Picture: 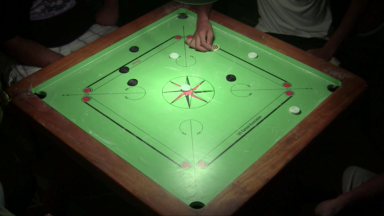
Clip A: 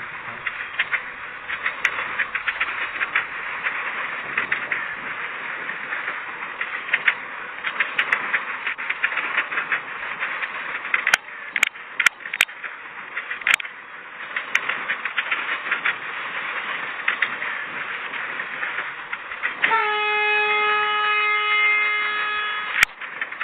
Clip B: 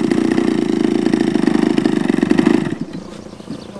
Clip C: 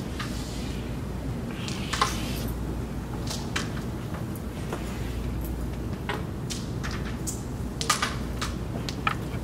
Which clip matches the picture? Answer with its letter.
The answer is C